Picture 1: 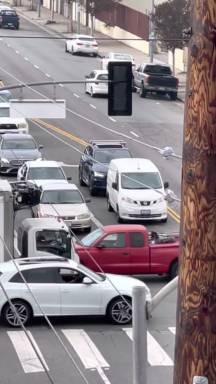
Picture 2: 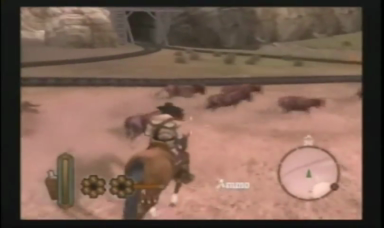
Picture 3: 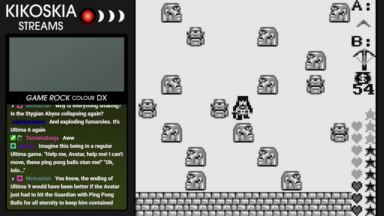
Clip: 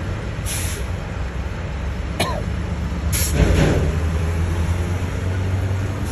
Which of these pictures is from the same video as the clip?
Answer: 1